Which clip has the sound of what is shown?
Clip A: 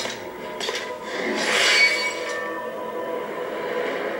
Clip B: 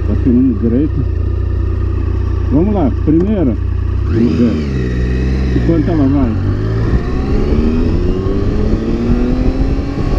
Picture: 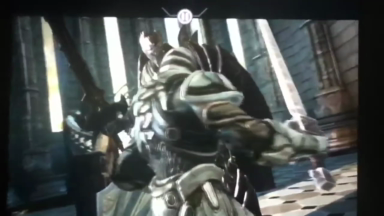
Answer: A